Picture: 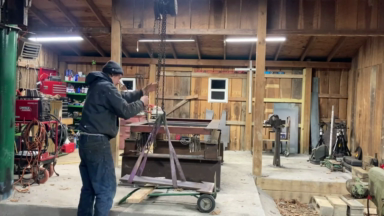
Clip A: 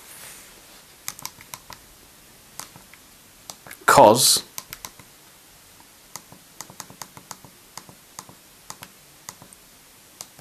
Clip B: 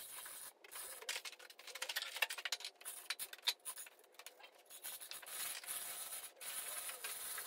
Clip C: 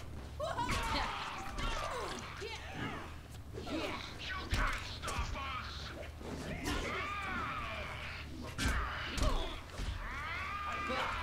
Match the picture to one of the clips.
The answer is B